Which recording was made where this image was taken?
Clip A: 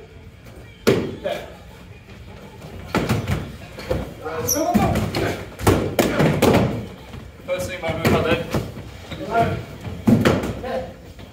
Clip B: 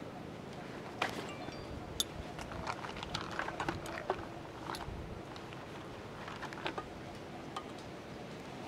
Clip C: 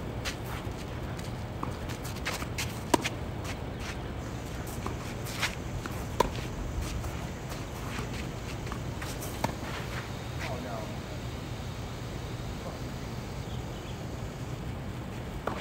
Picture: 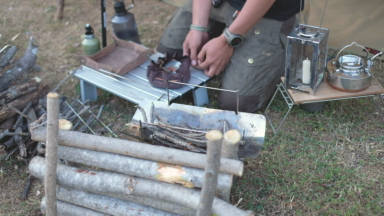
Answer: B